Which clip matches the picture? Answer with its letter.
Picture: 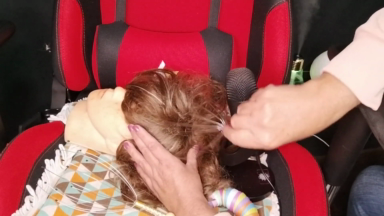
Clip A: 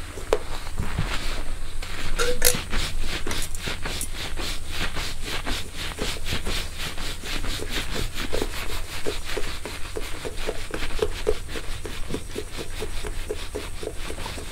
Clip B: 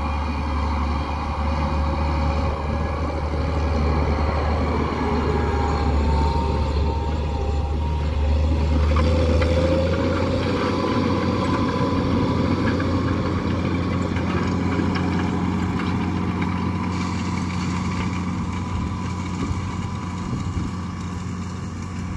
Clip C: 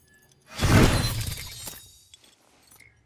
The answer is A